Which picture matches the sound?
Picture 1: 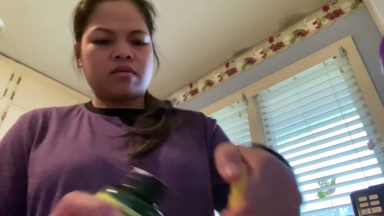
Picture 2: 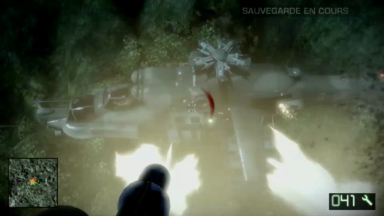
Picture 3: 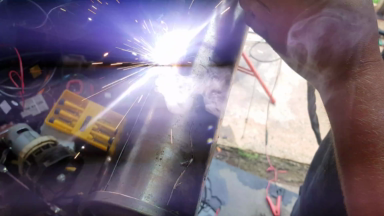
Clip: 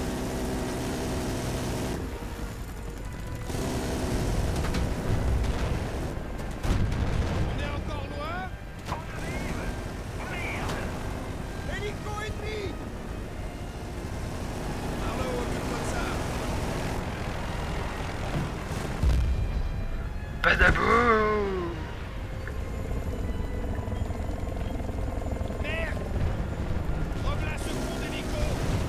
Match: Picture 2